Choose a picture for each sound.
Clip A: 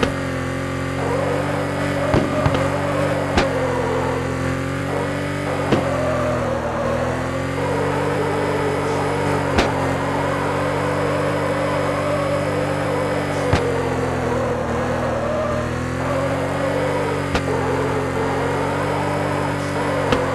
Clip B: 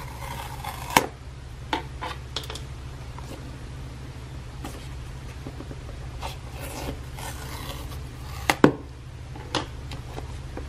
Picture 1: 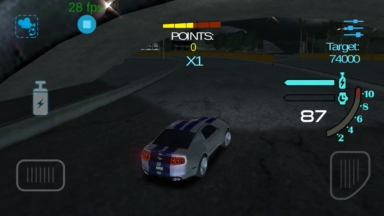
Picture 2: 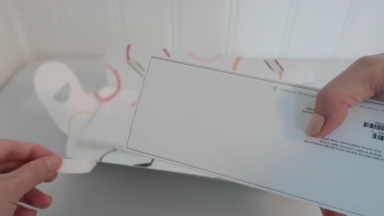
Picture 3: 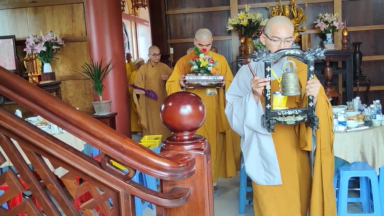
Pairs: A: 1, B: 2